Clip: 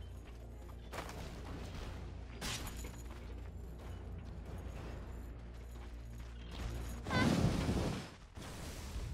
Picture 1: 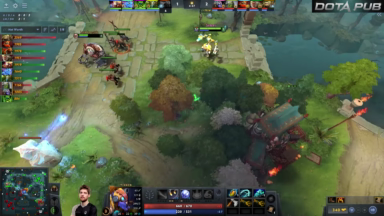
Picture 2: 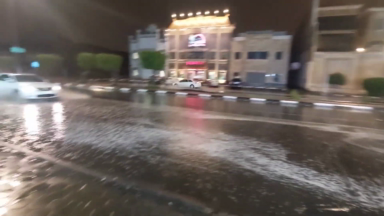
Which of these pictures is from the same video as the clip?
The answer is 1